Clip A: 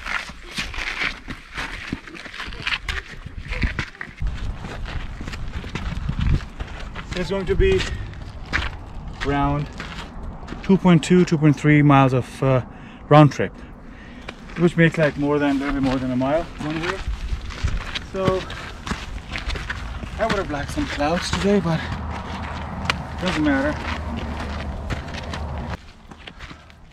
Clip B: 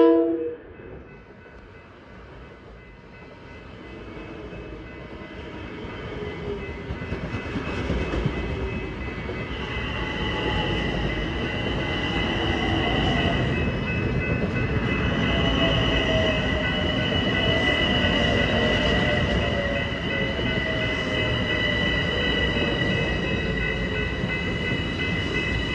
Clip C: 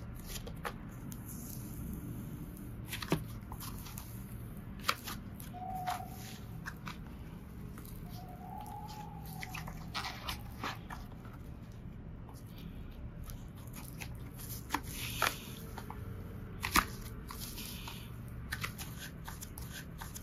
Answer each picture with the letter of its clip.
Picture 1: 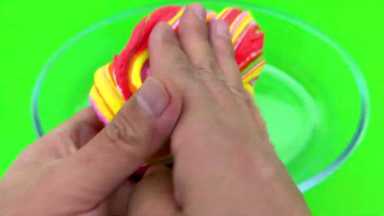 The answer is C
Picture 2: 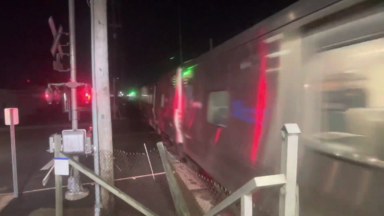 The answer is B